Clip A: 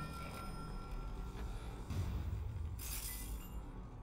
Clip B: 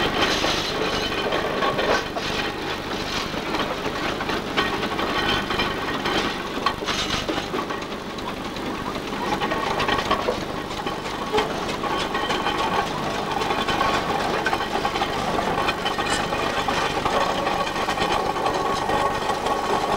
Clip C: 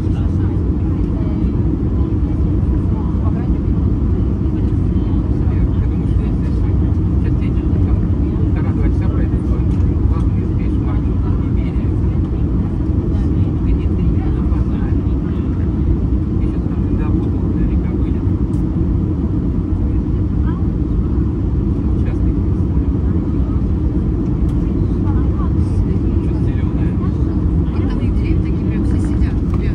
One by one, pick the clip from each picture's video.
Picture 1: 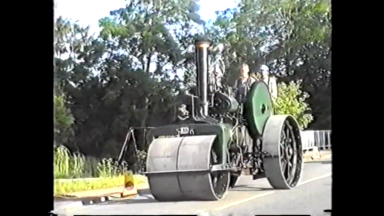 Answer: B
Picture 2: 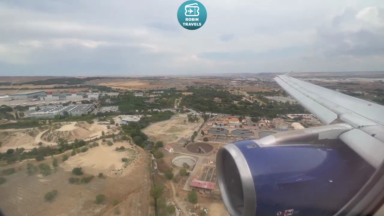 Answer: C